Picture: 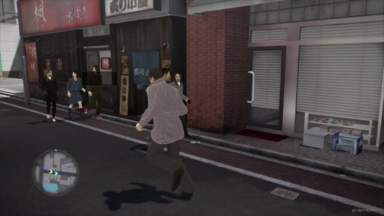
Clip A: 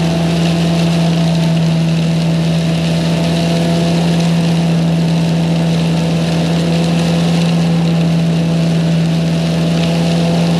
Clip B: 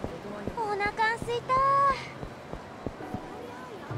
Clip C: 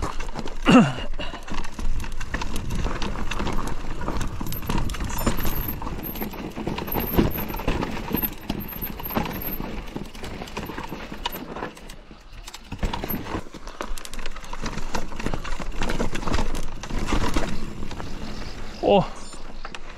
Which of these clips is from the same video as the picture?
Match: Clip B